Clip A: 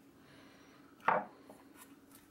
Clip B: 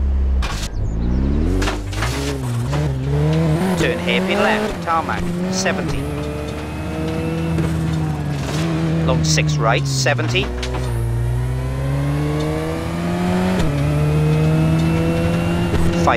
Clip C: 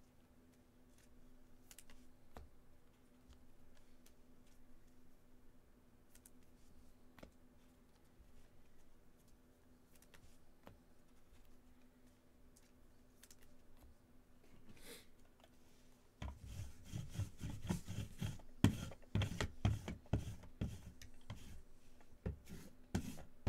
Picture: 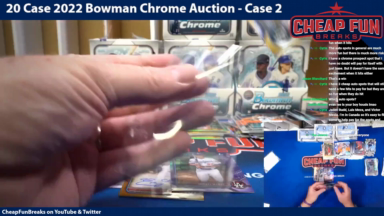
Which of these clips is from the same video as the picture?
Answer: C